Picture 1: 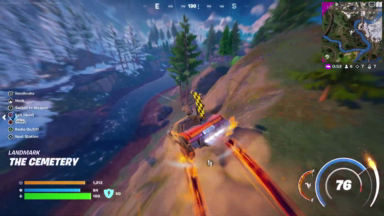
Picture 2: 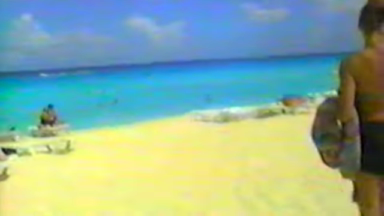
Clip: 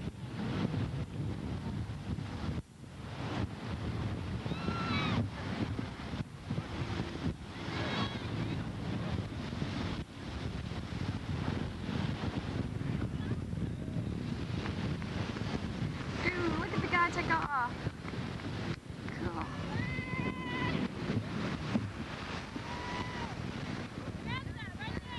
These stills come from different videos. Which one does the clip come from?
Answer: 2